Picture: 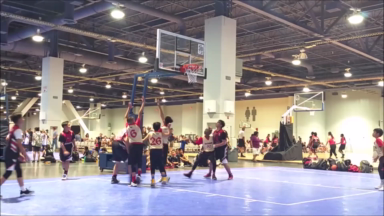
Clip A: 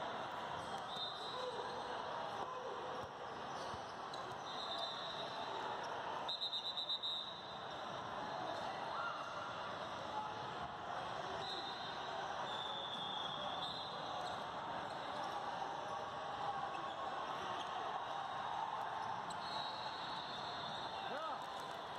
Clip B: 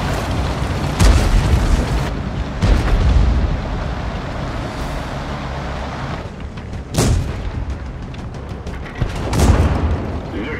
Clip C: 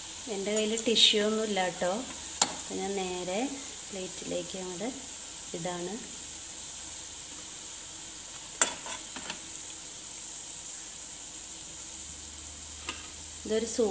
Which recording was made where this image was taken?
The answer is A